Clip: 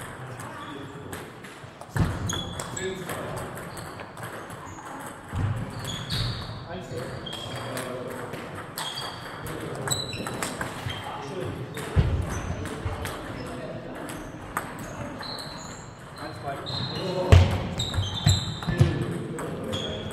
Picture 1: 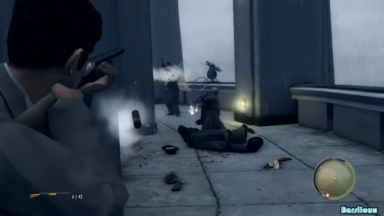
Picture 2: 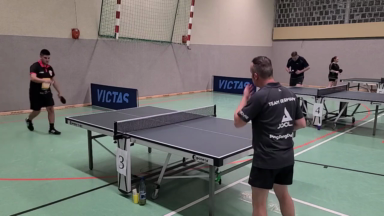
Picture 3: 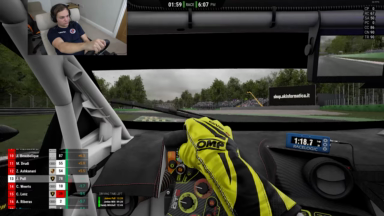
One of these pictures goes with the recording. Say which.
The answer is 2